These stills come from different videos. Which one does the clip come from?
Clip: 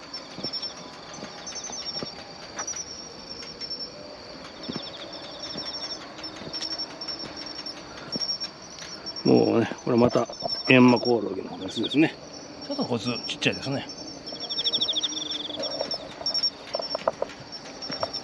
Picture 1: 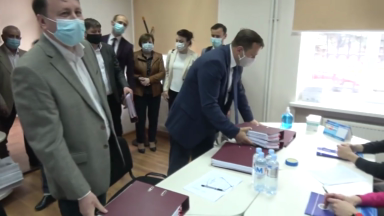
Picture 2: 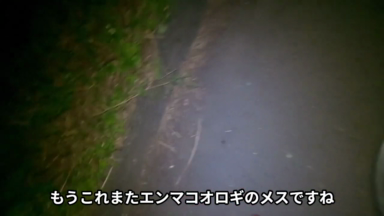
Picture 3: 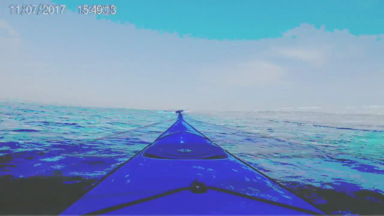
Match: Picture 2